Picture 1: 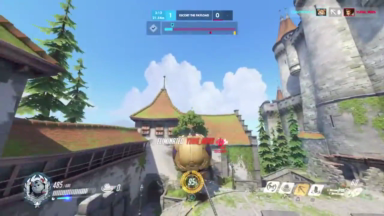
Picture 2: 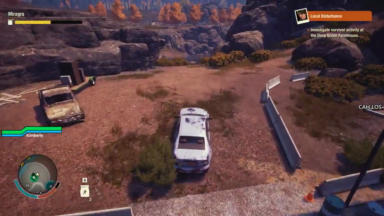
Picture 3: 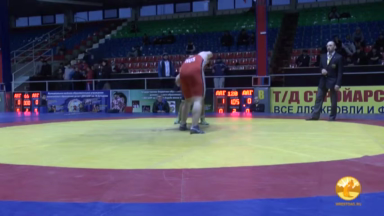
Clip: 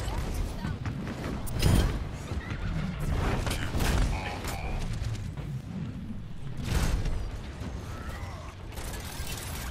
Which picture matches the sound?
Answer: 1